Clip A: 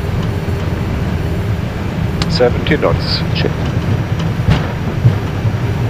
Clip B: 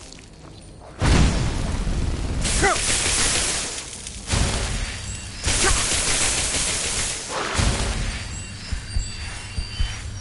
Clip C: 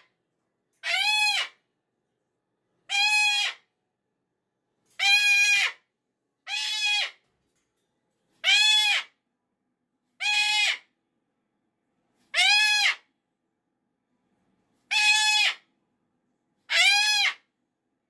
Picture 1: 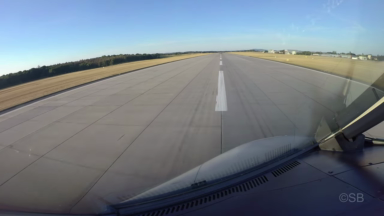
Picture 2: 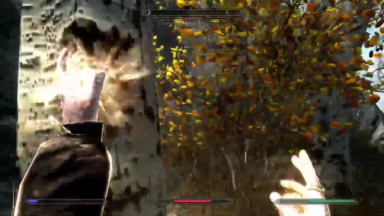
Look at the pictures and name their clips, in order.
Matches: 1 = A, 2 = B